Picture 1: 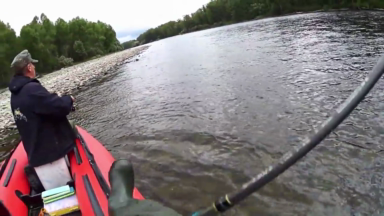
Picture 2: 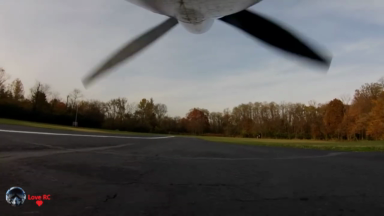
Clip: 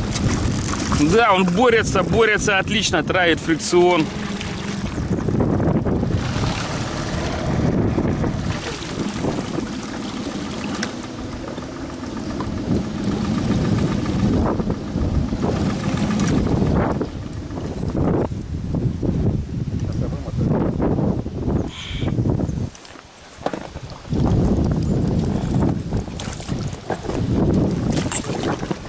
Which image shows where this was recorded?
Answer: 1